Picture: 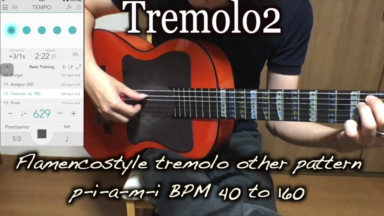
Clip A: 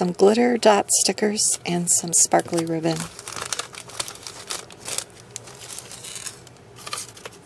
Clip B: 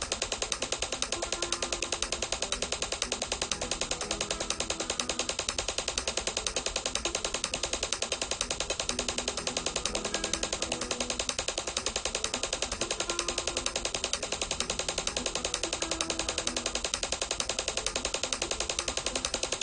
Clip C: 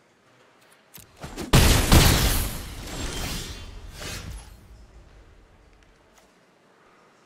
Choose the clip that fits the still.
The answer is B